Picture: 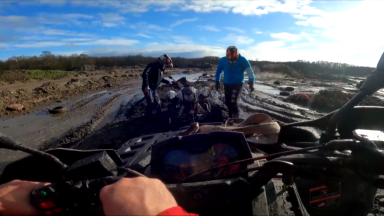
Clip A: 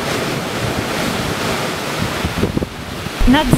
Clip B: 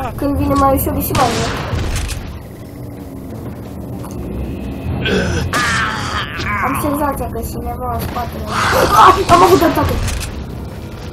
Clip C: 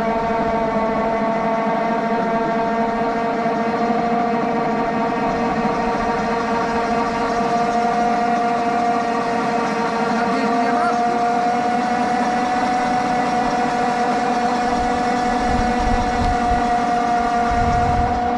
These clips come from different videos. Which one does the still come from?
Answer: C